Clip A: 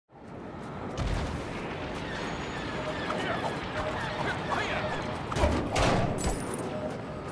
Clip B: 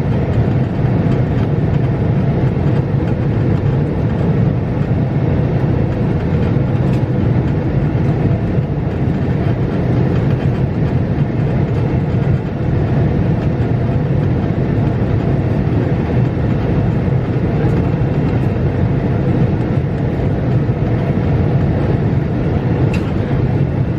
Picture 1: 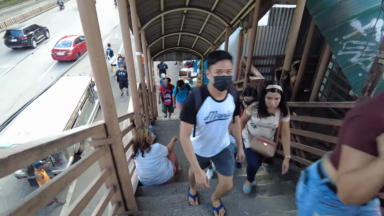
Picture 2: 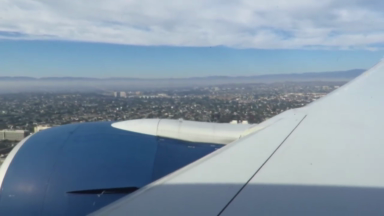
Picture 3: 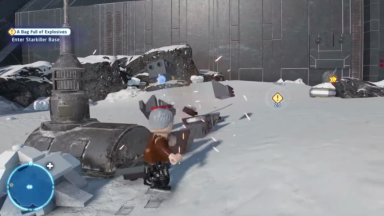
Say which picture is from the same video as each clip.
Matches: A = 3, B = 2